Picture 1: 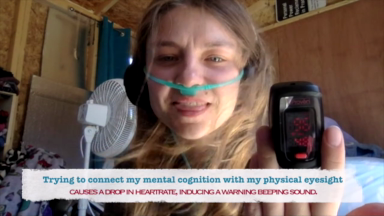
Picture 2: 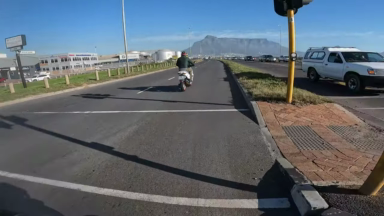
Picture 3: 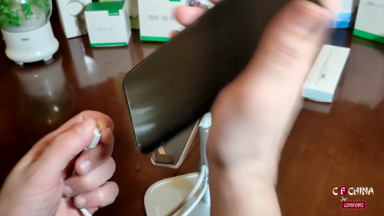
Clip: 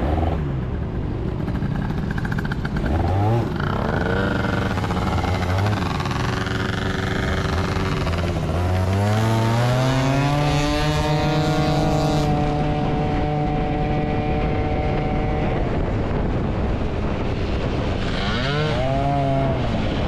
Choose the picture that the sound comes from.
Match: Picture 2